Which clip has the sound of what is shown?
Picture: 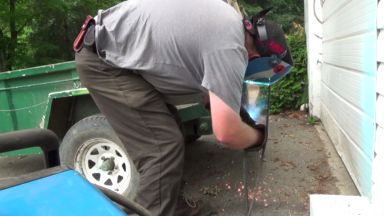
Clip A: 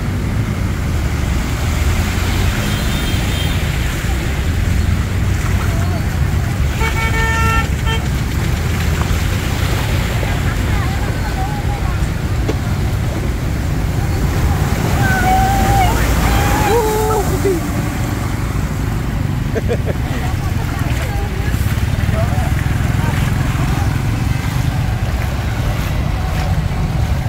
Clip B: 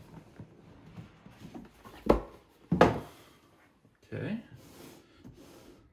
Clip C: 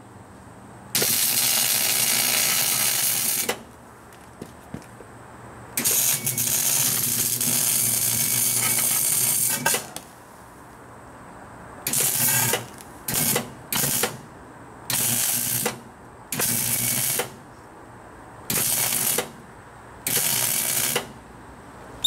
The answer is C